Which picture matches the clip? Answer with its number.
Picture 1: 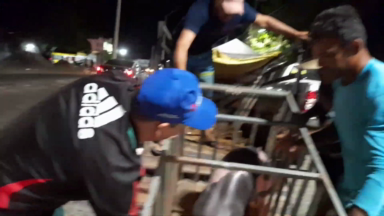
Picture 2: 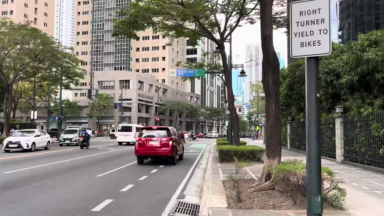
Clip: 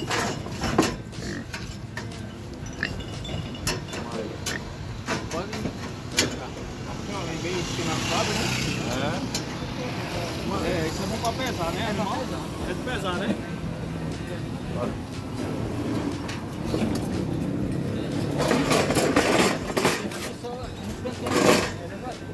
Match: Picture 1